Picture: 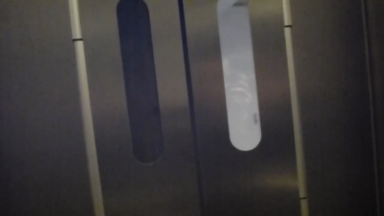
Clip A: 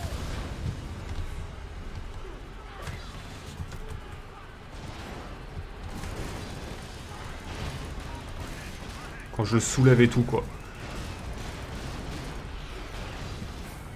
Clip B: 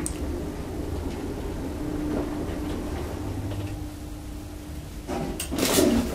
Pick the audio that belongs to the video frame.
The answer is B